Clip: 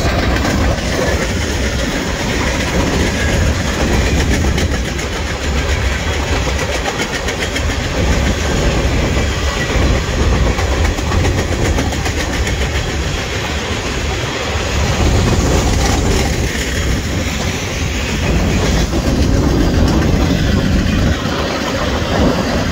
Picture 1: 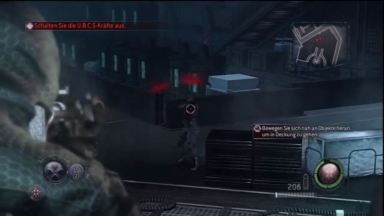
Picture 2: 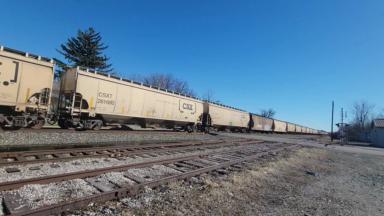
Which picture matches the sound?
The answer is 2